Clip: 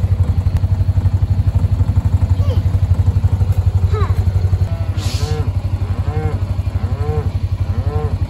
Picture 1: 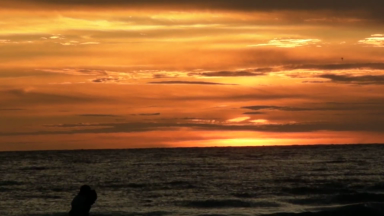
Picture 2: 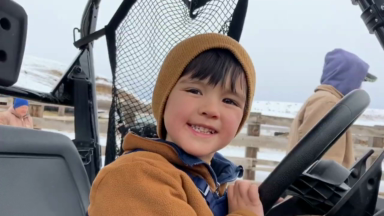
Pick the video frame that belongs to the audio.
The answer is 2